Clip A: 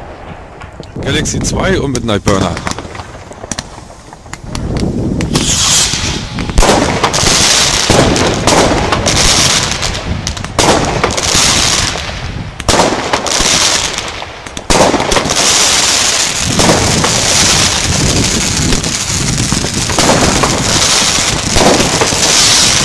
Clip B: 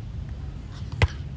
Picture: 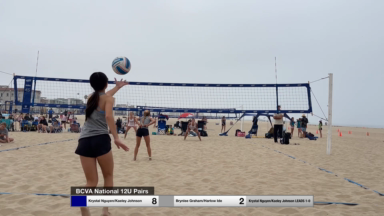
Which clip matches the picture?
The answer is B